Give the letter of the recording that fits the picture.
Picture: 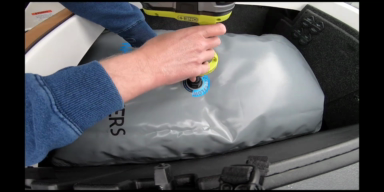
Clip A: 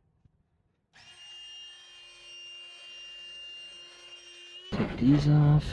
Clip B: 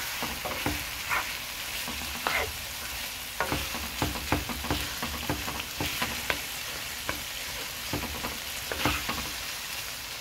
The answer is A